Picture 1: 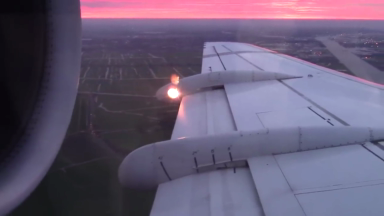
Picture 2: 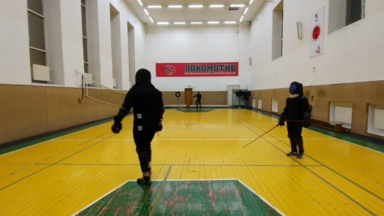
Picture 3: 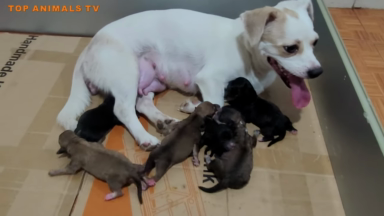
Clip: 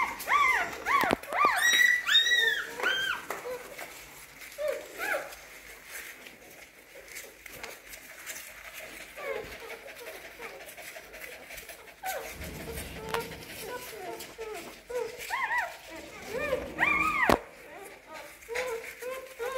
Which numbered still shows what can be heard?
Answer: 3